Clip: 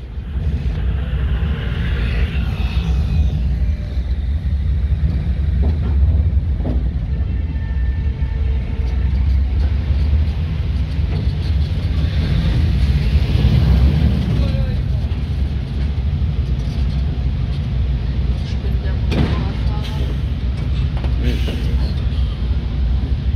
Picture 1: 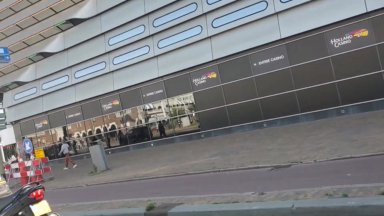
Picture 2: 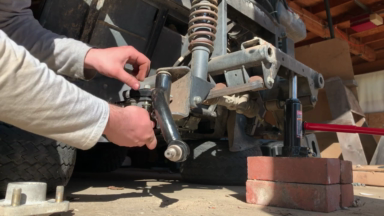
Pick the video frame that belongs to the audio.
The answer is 1